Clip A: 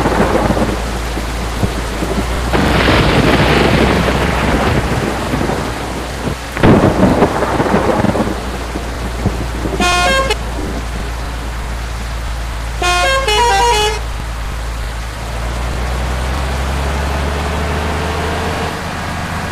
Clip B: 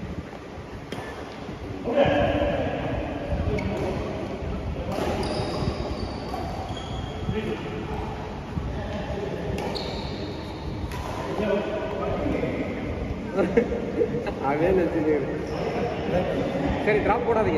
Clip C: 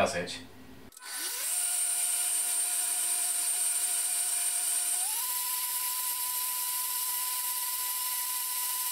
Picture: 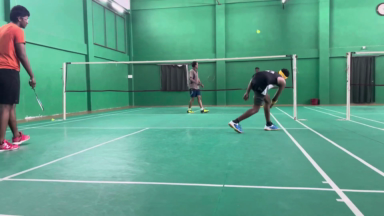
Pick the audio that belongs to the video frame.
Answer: B